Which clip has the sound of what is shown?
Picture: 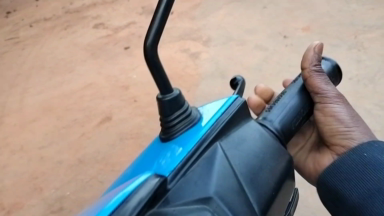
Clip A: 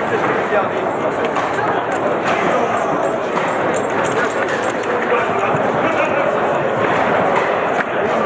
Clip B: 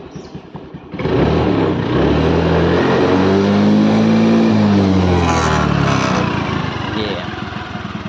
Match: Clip B